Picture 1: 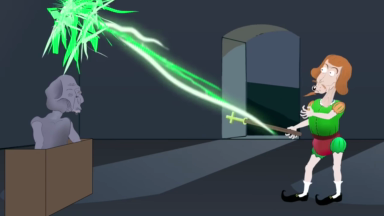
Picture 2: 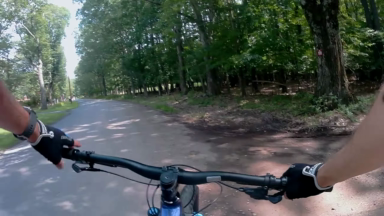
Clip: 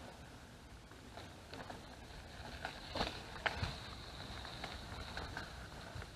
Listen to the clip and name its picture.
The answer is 2